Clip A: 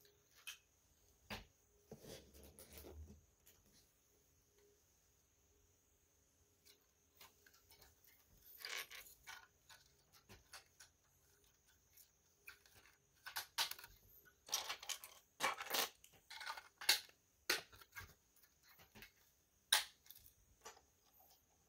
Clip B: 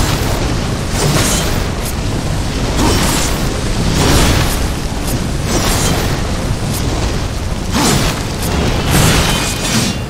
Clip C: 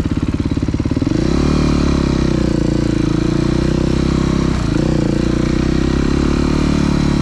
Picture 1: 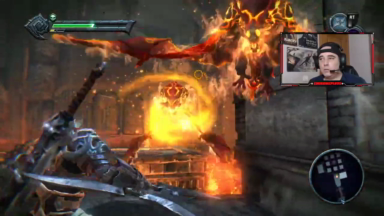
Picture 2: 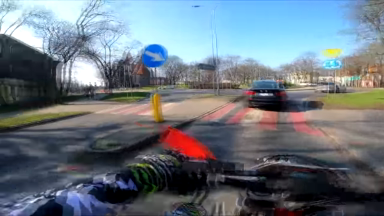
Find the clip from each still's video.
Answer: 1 B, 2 C